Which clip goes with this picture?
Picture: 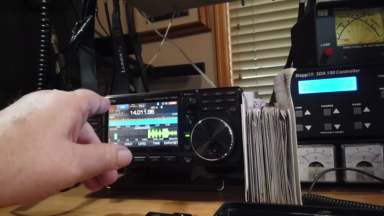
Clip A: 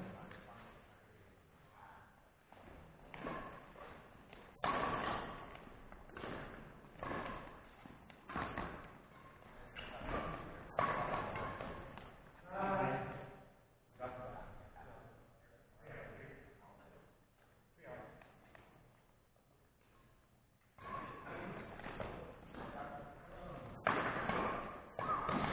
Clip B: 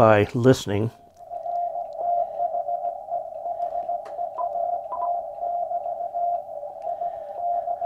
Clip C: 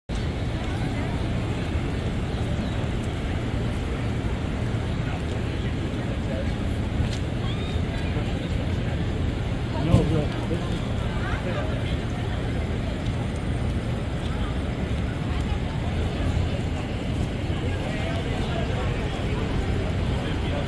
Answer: B